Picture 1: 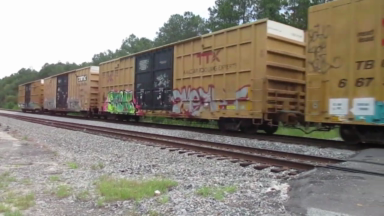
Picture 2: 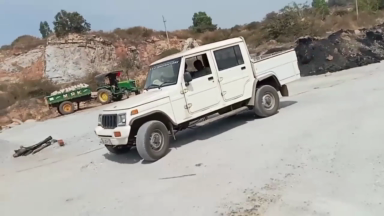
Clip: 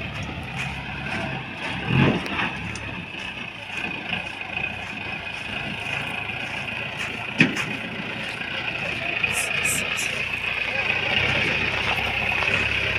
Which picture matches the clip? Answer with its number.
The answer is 2